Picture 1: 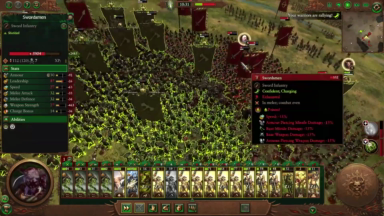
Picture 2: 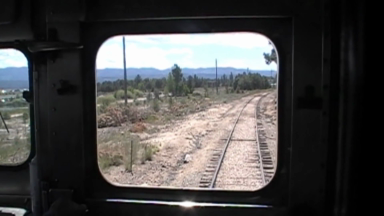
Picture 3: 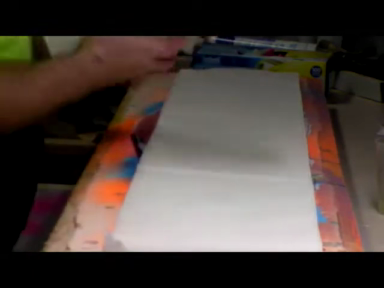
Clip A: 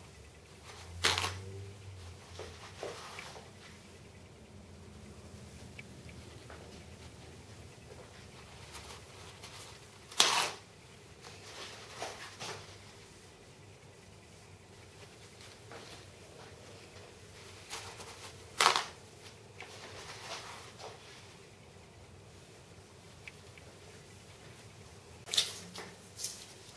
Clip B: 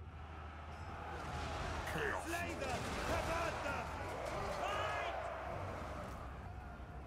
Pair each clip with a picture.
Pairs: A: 3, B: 1